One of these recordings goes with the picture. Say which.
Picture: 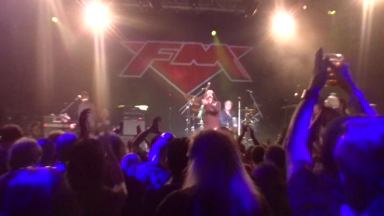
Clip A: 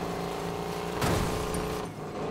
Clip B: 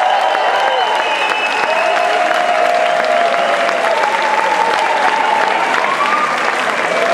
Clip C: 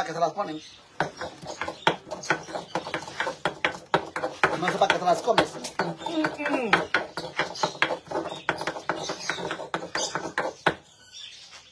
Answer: B